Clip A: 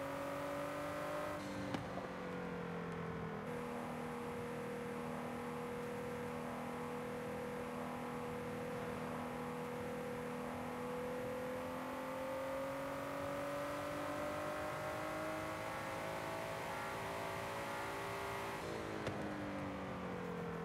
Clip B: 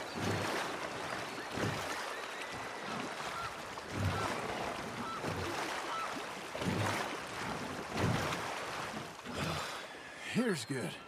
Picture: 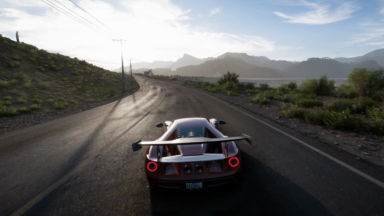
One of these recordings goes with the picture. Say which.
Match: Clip A